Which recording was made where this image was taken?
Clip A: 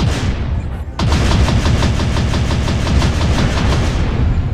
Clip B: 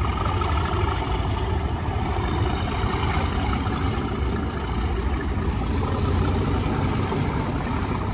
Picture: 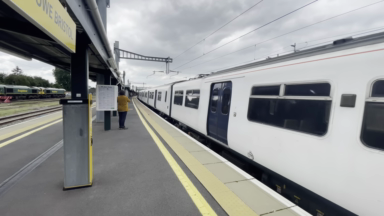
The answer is B